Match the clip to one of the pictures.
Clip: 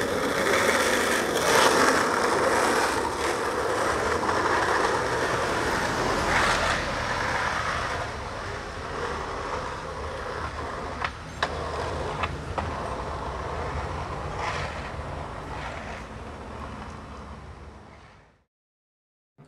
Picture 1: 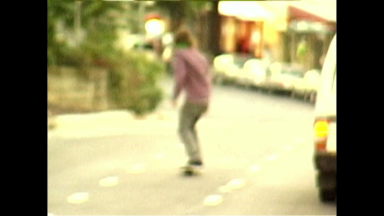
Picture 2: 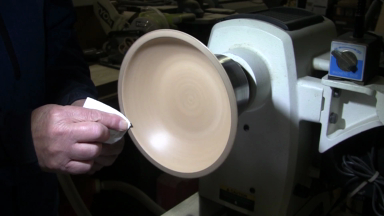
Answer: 1